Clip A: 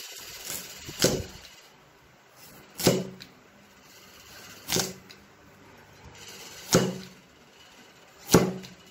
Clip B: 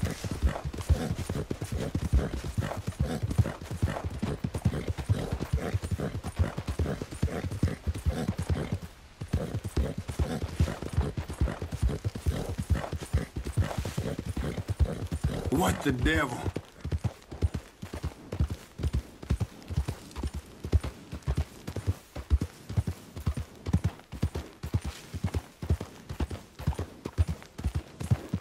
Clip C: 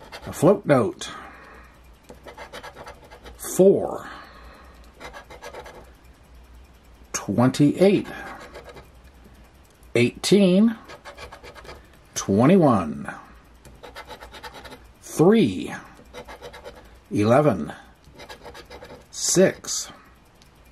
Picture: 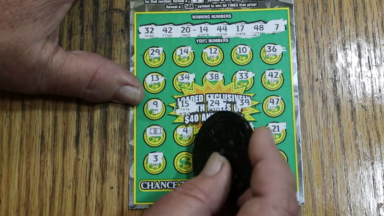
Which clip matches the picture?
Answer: C